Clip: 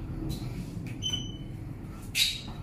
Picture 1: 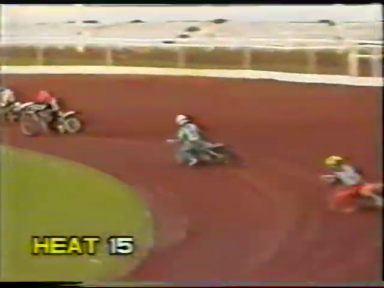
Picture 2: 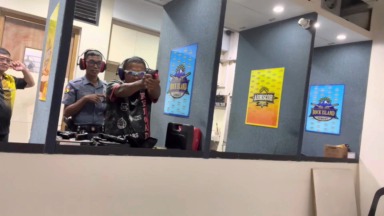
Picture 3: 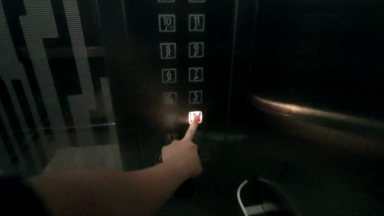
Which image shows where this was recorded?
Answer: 3